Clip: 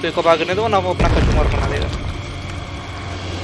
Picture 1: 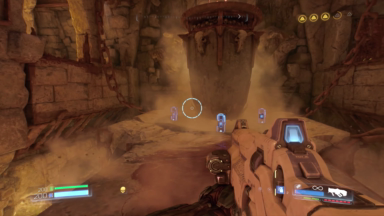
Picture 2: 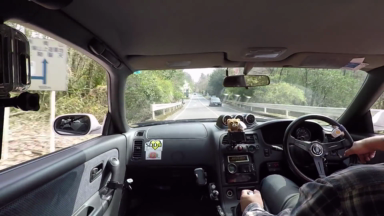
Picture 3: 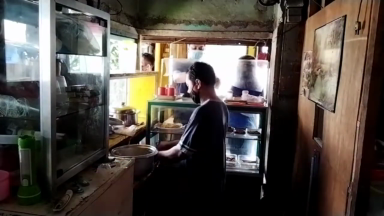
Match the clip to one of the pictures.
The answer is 1